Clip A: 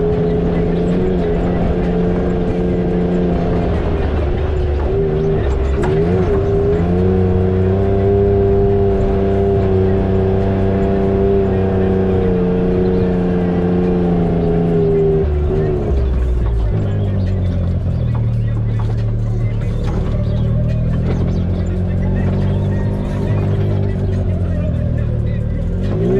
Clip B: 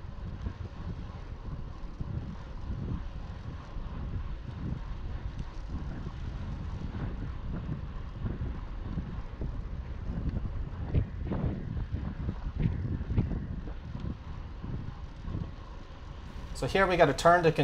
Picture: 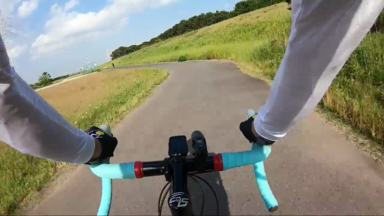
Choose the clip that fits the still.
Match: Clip B